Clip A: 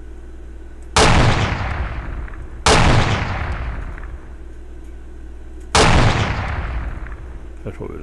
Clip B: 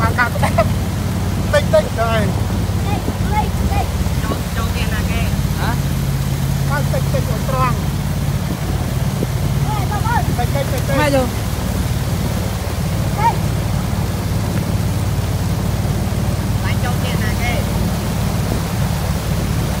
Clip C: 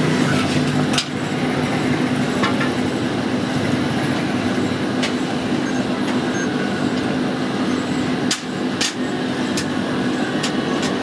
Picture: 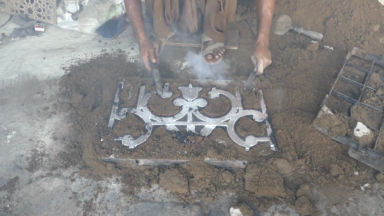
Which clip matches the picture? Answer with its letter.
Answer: C